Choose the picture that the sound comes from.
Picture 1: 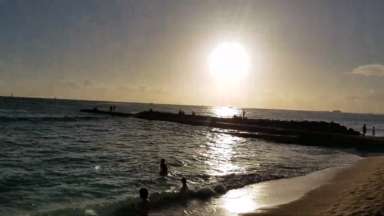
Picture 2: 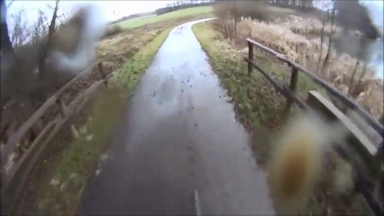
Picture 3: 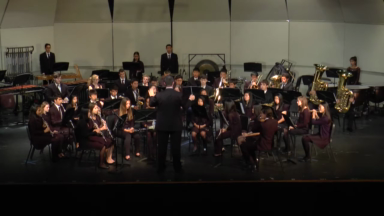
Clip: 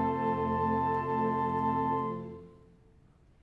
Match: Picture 3